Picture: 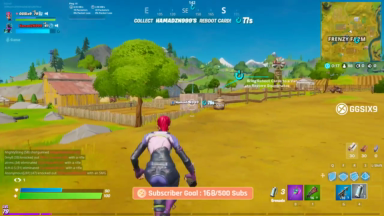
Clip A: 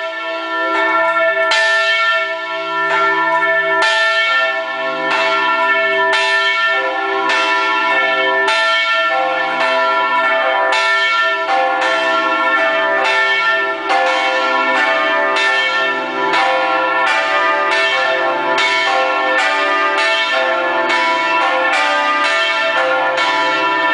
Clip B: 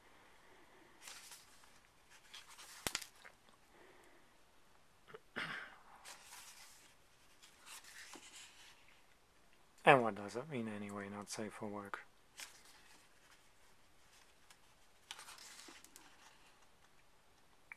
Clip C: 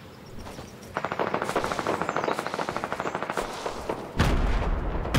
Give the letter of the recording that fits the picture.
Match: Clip C